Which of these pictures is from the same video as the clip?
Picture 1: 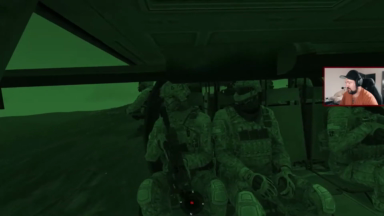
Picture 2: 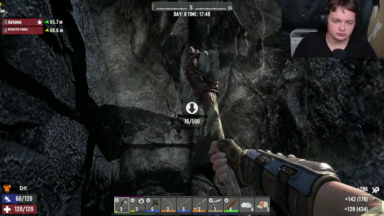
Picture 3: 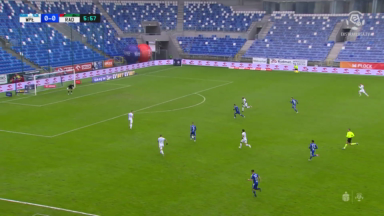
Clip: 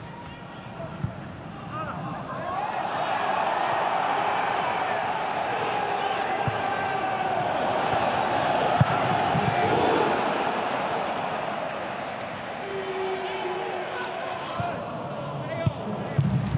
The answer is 3